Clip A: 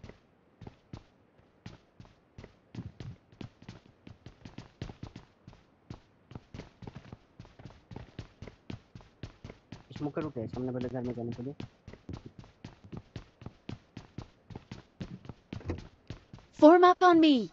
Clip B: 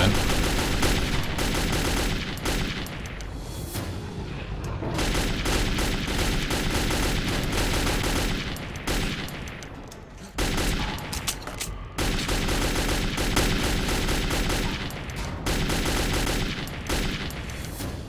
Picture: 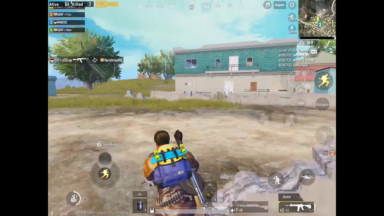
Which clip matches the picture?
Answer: A